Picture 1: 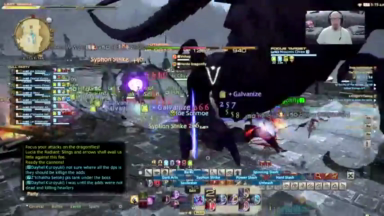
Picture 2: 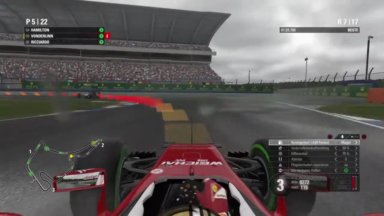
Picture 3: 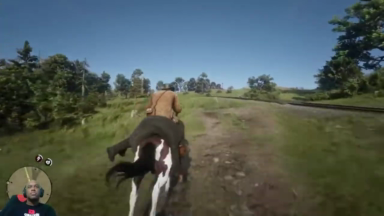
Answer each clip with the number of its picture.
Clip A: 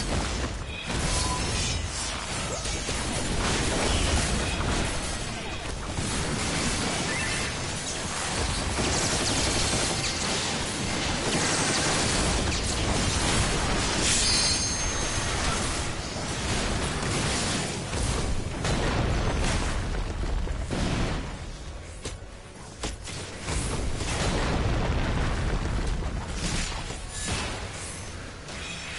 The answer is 1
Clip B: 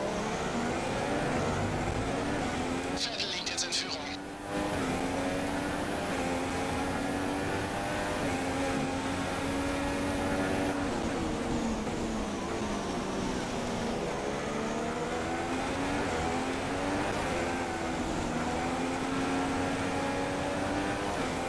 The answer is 2